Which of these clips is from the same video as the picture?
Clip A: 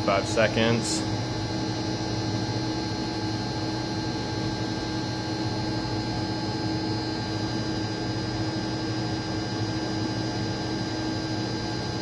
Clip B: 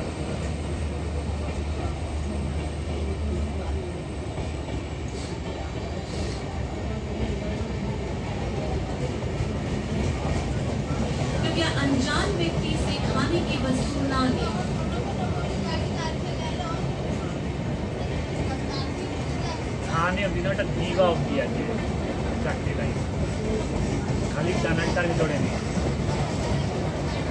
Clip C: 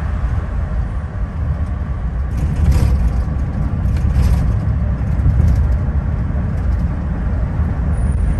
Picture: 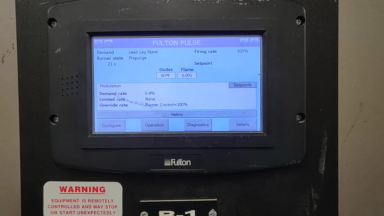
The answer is A